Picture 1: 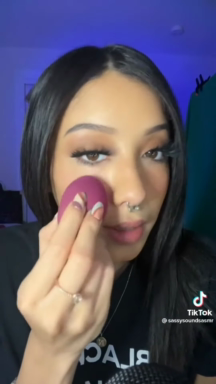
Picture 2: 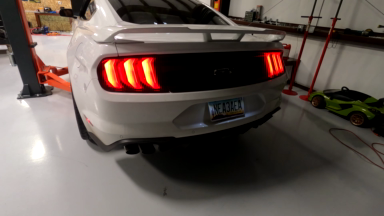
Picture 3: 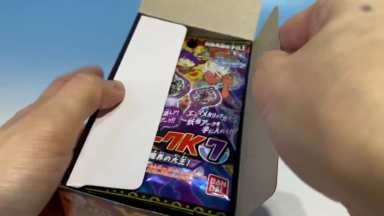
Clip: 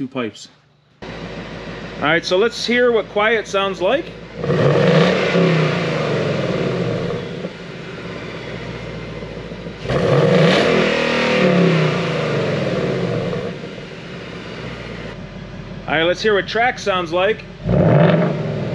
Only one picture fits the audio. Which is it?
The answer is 2